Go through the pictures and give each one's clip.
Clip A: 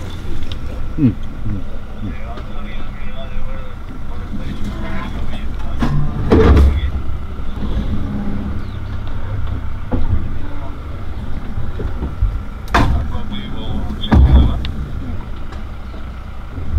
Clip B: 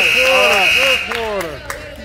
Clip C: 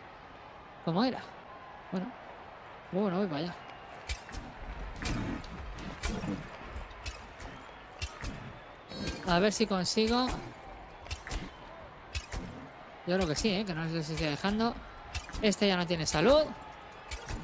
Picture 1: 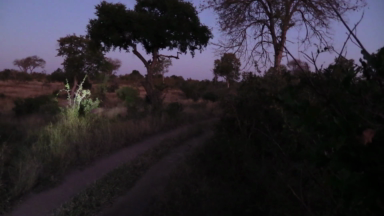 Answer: A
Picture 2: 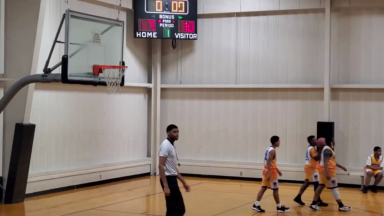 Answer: B